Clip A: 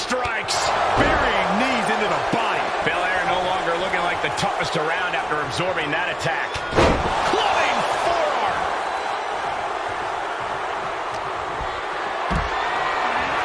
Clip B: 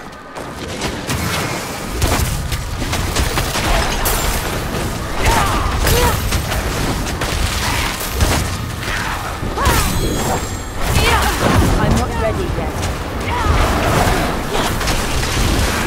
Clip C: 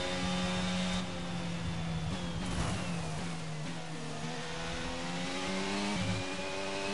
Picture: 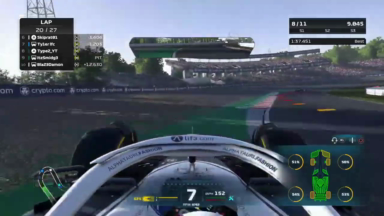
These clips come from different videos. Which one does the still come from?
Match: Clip C